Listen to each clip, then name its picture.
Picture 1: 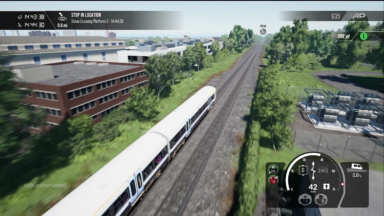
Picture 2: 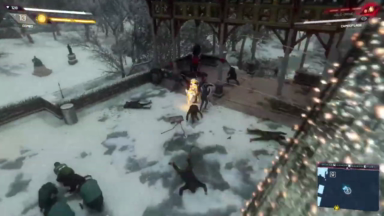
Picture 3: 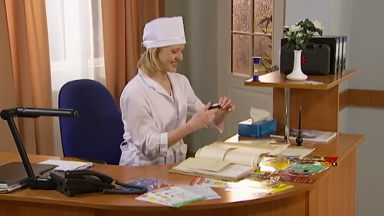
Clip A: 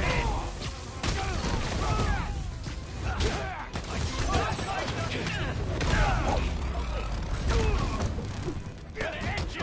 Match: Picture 2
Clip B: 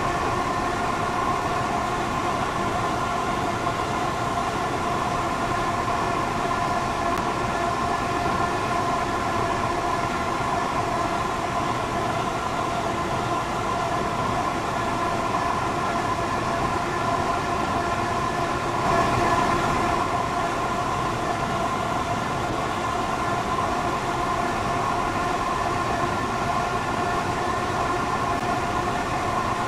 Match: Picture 1